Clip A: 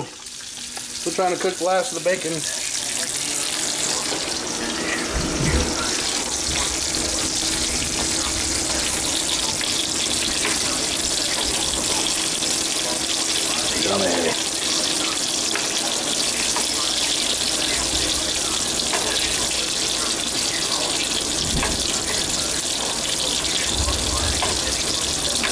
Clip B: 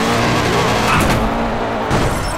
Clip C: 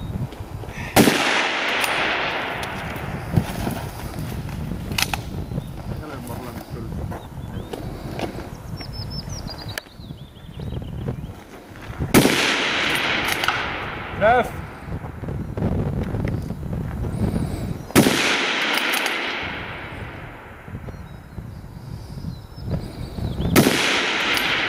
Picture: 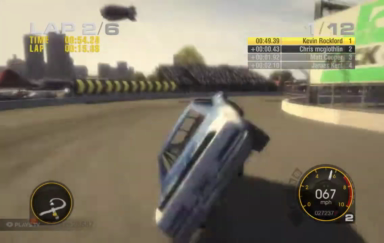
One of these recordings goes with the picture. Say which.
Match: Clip B